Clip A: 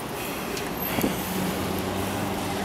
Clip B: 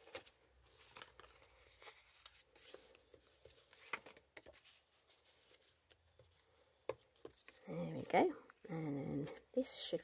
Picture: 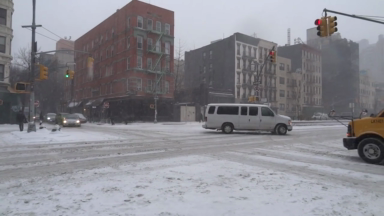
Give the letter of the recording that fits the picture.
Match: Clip A